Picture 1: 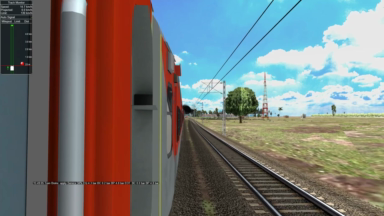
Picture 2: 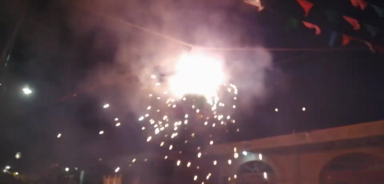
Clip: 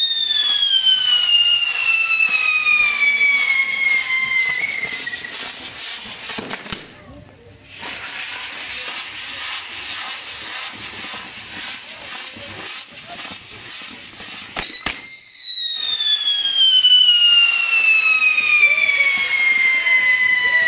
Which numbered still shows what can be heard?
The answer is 2